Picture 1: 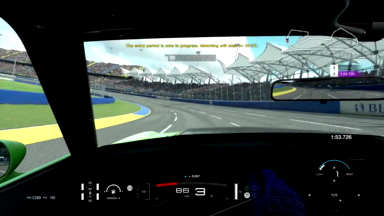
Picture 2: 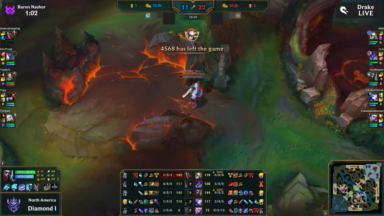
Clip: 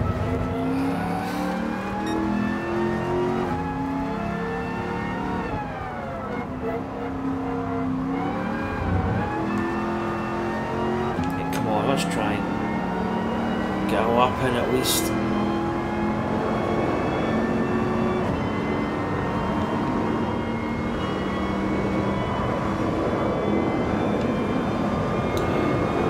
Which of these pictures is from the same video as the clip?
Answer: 1